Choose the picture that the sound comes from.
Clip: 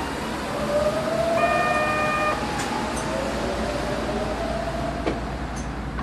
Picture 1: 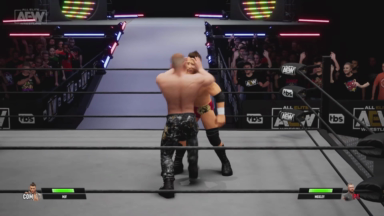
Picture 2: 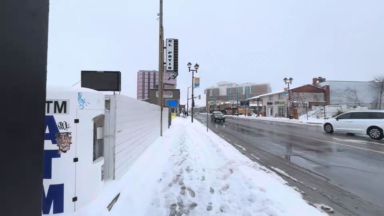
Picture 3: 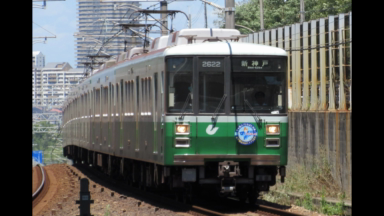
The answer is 3